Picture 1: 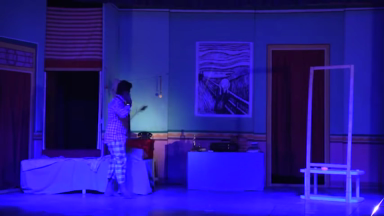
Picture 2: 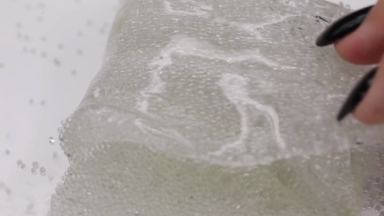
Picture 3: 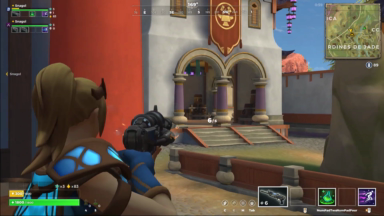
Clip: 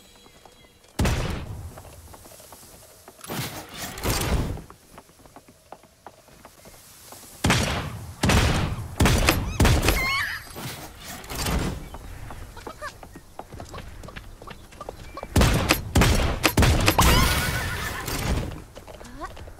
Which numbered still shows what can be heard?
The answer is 3